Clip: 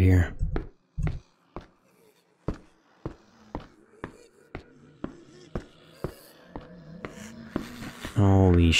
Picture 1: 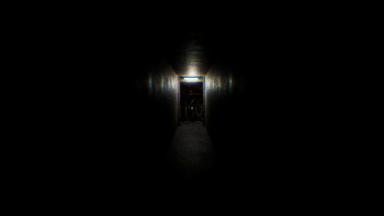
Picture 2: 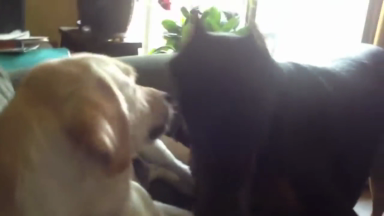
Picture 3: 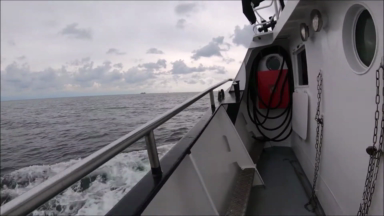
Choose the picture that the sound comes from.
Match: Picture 1